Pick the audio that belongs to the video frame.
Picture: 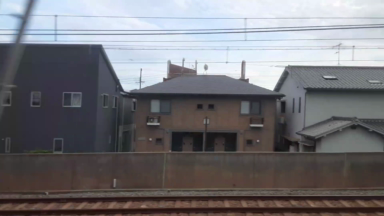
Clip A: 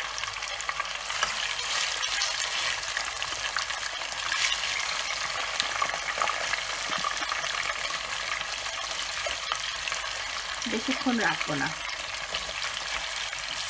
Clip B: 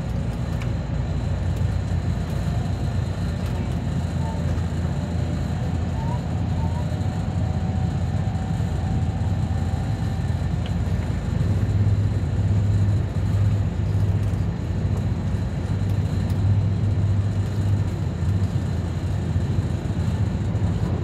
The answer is B